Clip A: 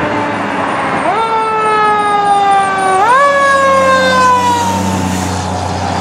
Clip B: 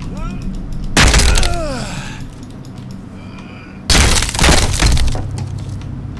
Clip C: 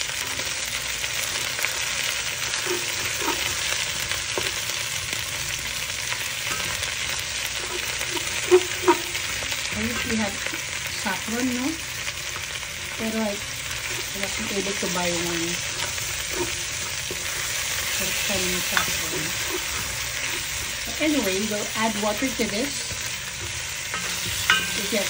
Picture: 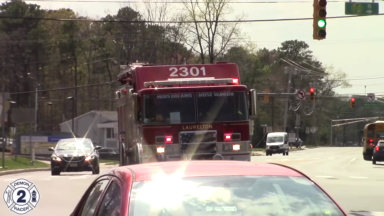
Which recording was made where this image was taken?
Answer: A